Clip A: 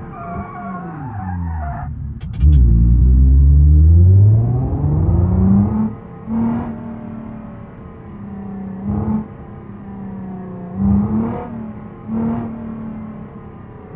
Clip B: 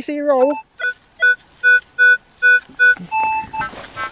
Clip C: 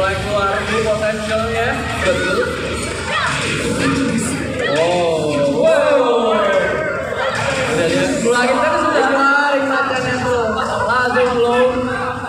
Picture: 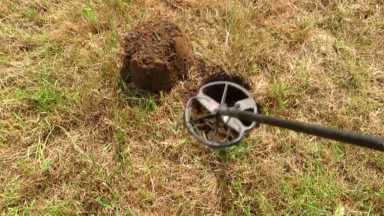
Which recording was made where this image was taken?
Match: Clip B